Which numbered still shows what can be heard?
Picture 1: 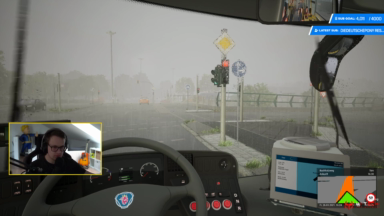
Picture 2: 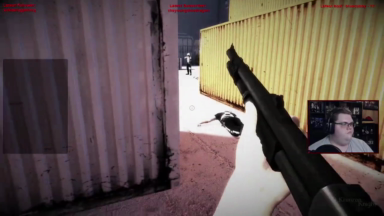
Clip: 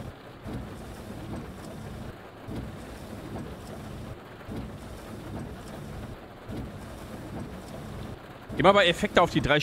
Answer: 1